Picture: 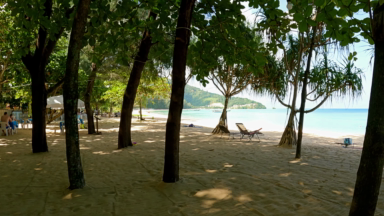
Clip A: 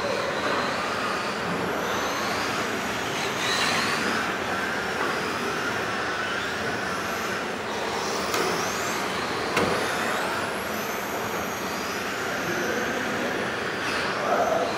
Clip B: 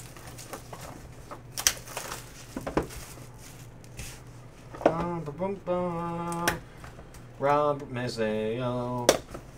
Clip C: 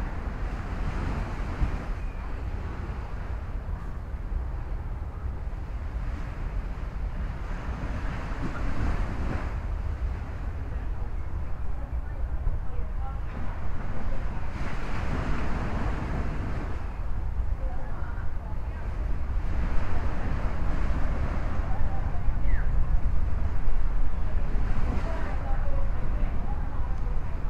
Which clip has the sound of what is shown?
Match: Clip C